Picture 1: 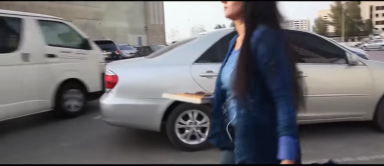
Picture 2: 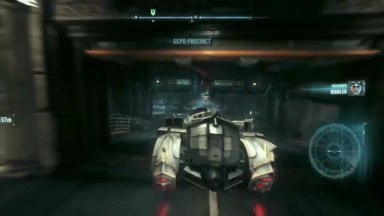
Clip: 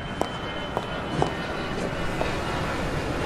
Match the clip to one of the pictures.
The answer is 1